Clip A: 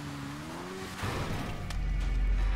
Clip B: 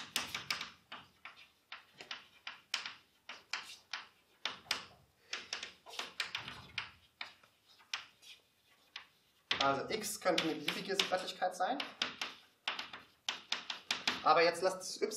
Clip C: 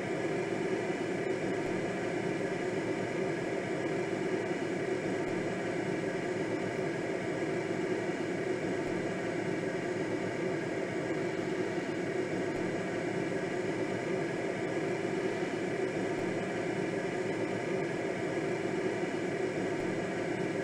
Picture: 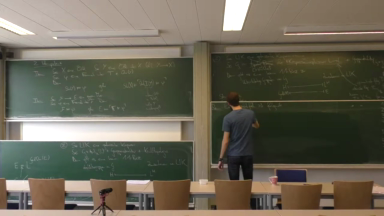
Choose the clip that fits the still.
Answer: B